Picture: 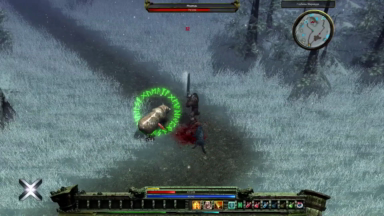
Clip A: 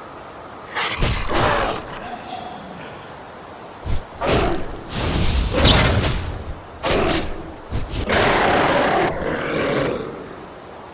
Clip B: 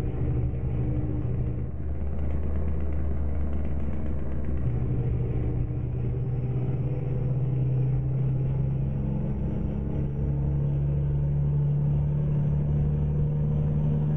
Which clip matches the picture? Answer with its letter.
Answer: A